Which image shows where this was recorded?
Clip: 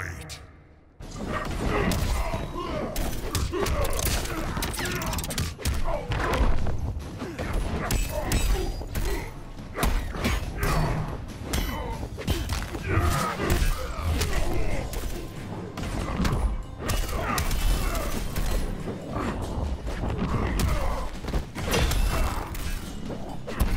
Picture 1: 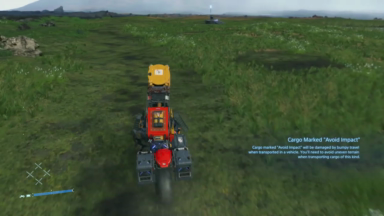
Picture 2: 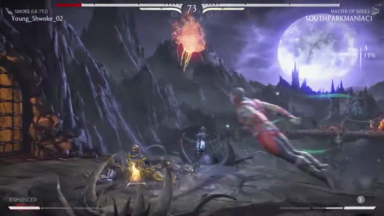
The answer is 2